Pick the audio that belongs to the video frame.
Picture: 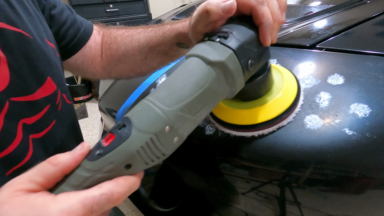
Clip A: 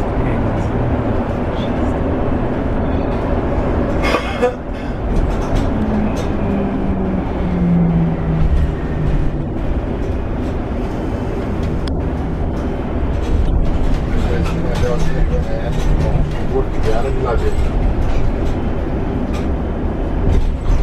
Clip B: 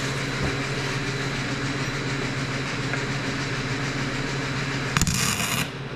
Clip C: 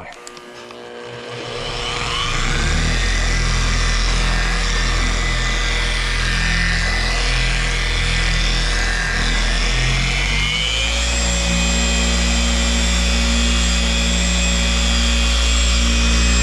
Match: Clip C